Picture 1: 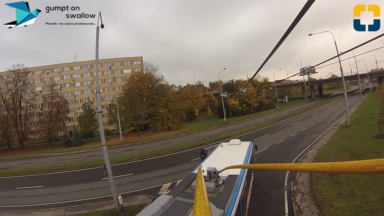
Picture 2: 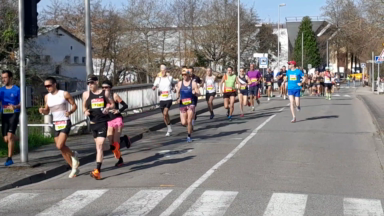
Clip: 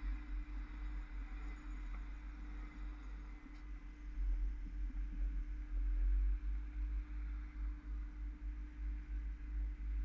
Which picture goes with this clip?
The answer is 1